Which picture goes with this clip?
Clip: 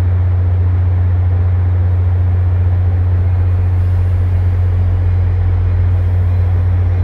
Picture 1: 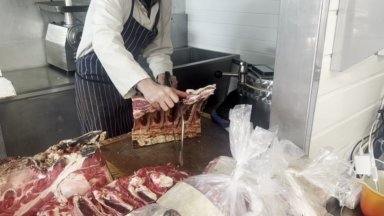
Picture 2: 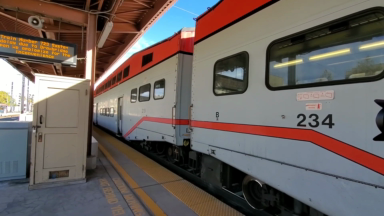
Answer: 2